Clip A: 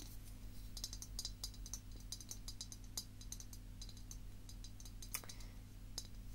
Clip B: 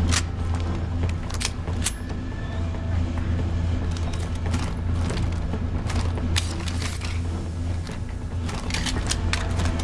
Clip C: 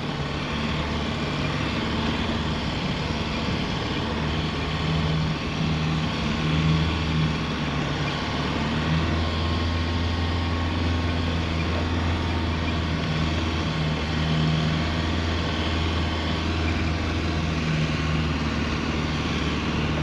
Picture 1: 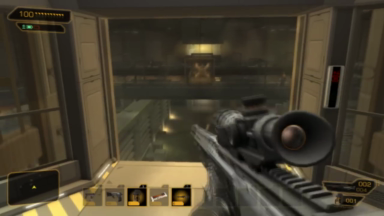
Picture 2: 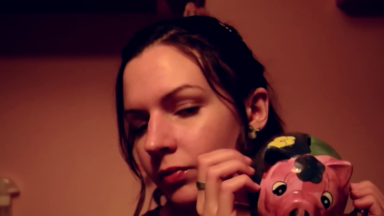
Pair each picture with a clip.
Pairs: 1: B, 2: A